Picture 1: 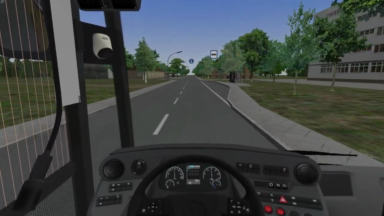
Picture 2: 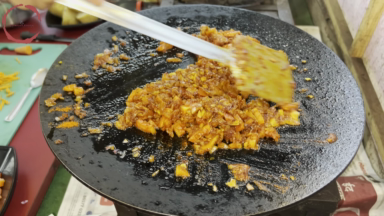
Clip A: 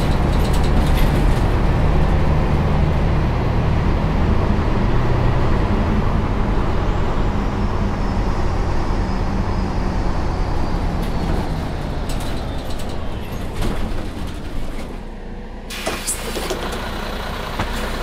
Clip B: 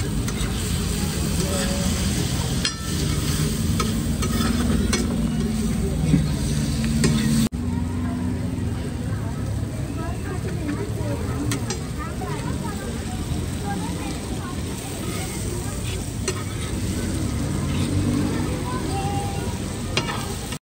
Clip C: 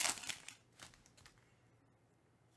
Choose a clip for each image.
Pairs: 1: A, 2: B